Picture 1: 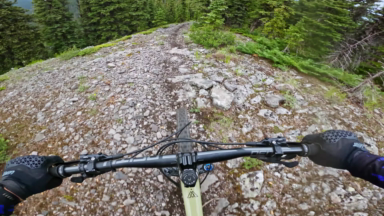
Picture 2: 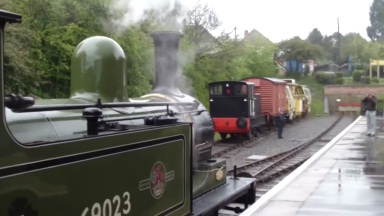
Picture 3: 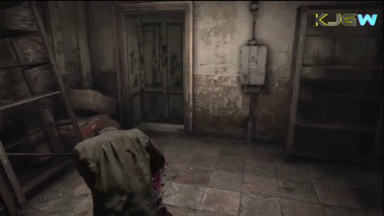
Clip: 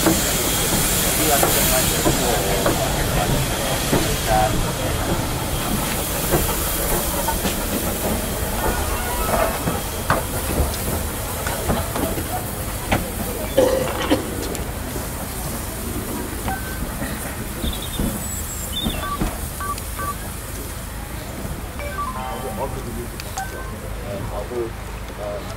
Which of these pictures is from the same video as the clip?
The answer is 2